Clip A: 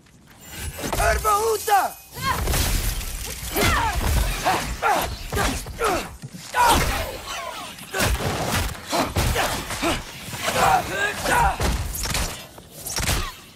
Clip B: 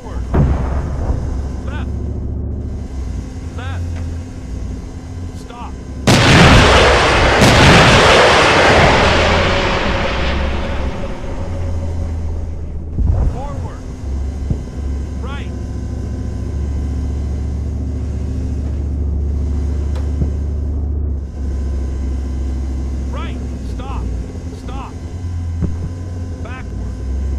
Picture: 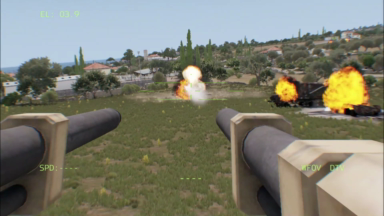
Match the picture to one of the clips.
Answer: B